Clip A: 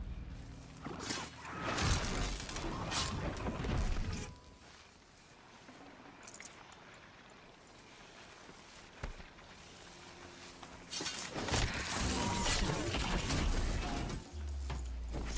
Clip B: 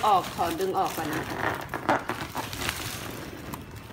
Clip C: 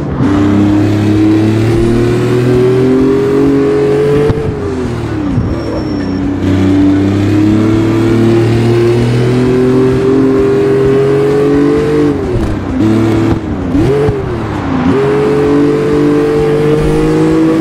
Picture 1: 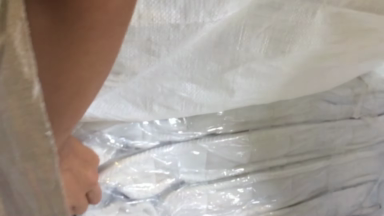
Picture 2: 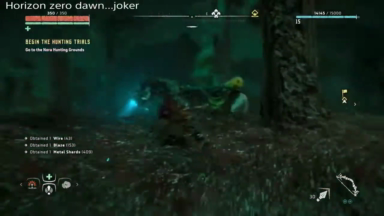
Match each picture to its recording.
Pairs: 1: B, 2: A